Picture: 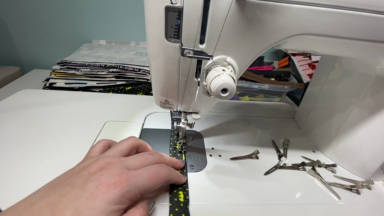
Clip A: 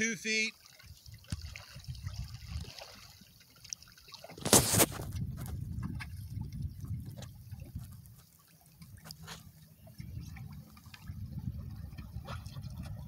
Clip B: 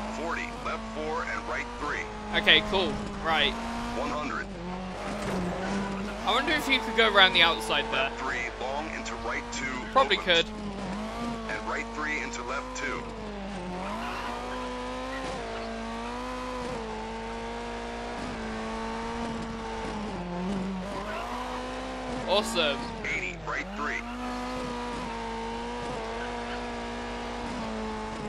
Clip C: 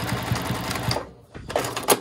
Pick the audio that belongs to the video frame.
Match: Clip C